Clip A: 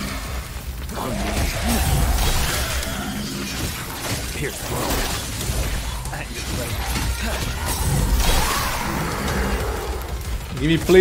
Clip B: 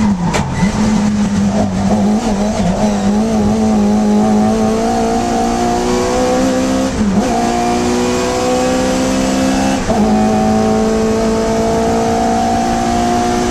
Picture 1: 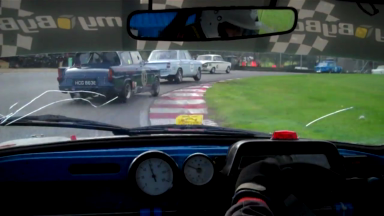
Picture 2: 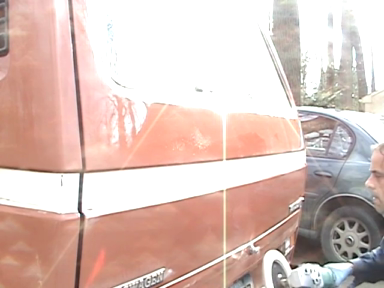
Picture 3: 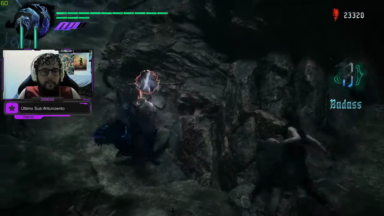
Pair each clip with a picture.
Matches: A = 3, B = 1